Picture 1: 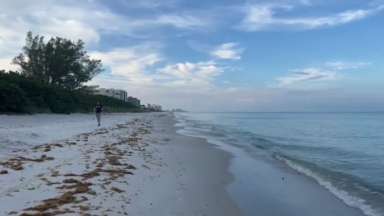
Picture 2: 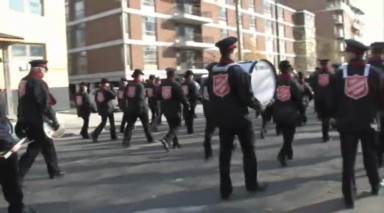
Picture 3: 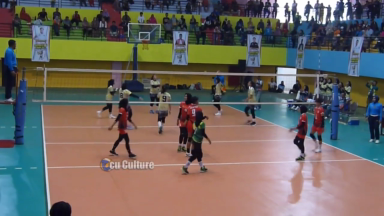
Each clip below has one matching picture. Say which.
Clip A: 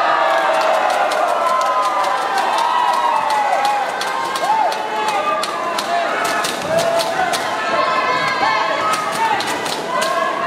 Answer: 3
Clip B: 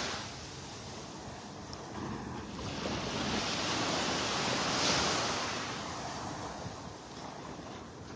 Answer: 1